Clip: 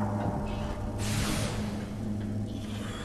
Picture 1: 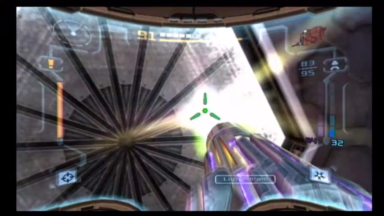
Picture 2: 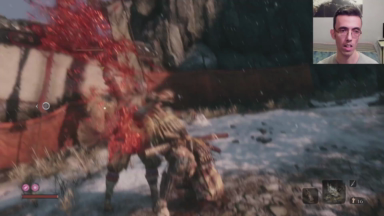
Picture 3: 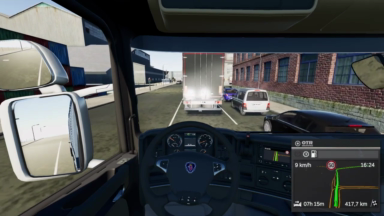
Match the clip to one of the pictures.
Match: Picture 1